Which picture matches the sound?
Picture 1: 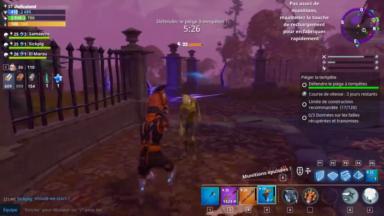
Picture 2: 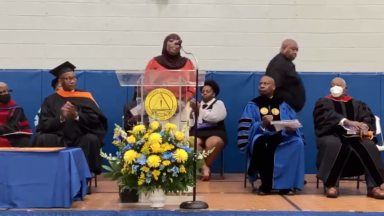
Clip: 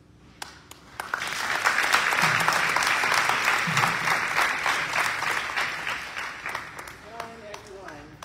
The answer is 2